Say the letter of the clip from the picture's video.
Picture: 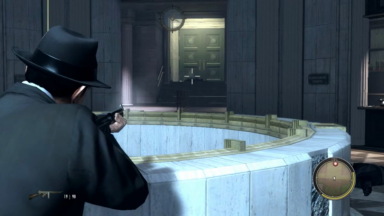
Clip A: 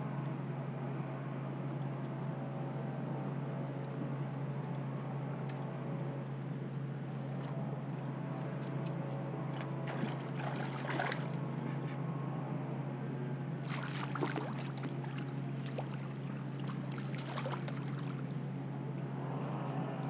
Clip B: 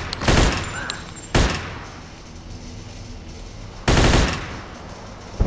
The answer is B